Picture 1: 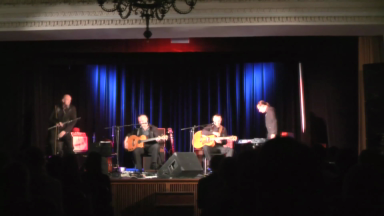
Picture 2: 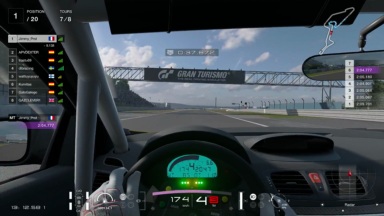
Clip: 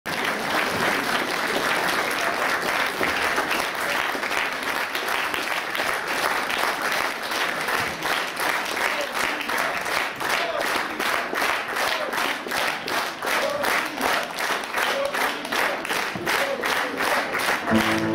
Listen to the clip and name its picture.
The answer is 1